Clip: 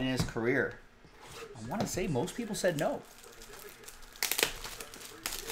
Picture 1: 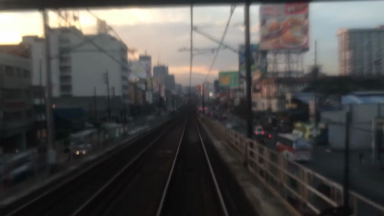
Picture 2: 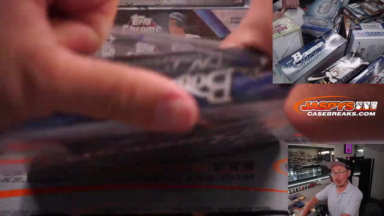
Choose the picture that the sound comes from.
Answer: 2